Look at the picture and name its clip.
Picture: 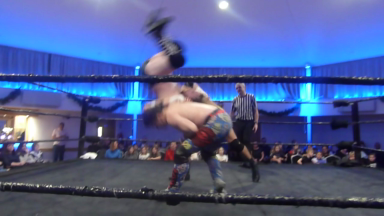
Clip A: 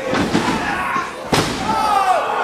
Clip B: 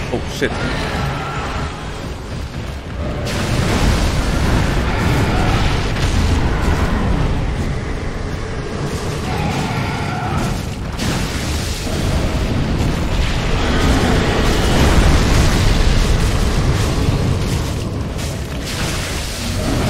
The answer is A